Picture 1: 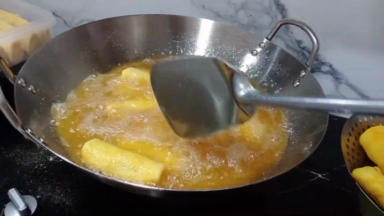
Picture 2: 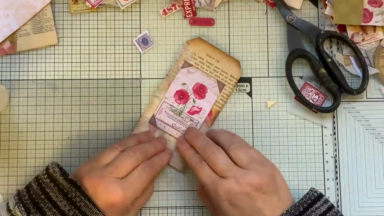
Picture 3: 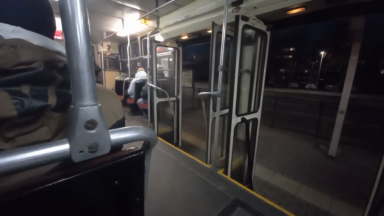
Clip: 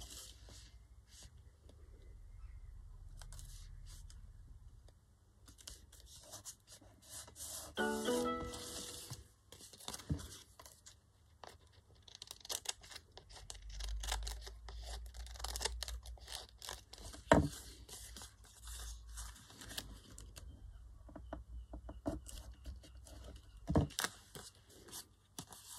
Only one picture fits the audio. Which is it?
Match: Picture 2